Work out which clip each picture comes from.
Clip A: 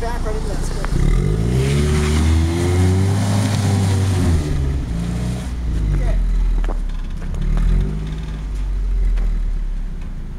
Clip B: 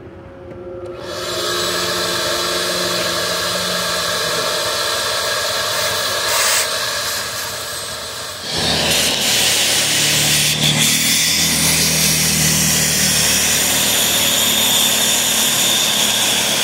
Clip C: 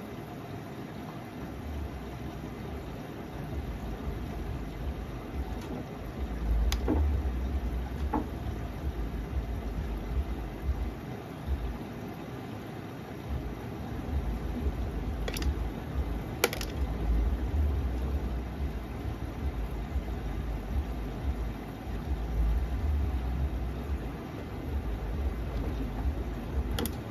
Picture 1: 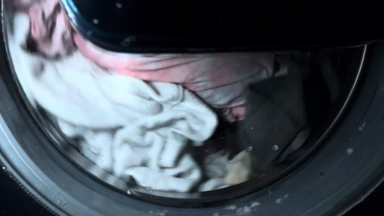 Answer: C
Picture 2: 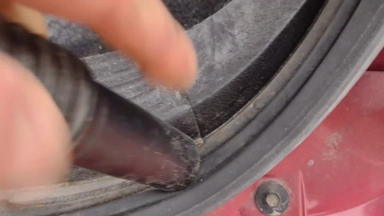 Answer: B